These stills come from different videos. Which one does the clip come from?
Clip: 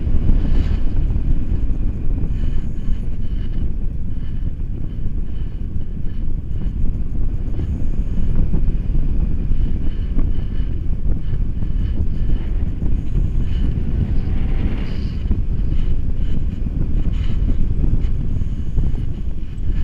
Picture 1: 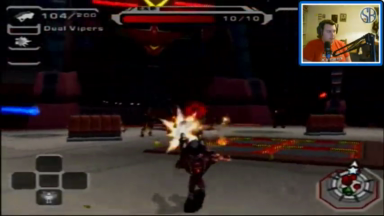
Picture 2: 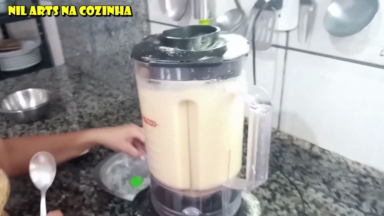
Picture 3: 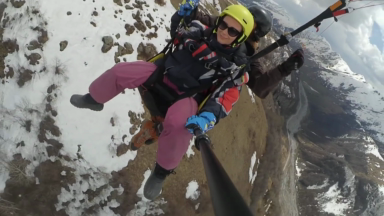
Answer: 3